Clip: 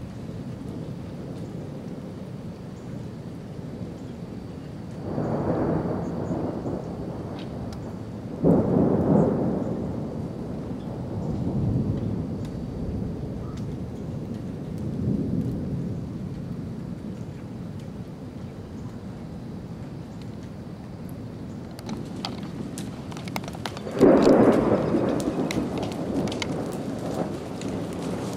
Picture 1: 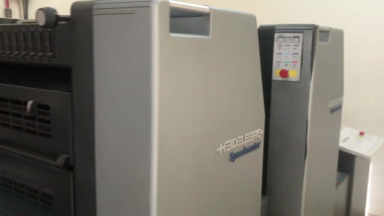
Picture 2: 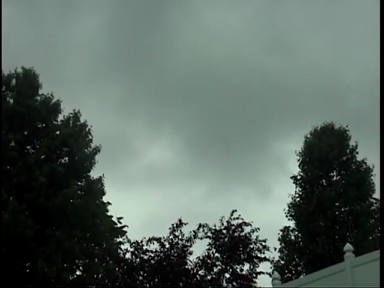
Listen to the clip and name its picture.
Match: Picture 2